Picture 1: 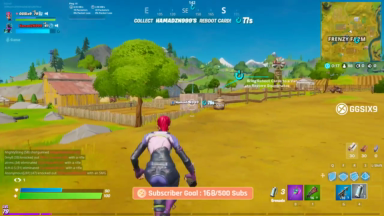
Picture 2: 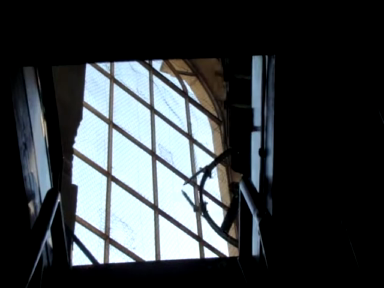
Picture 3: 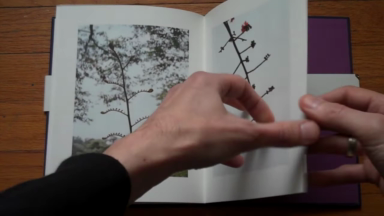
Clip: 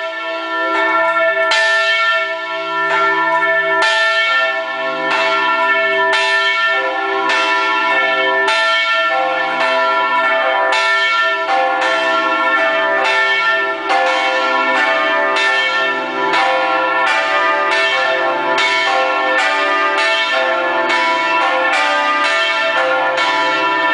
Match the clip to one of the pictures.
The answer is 2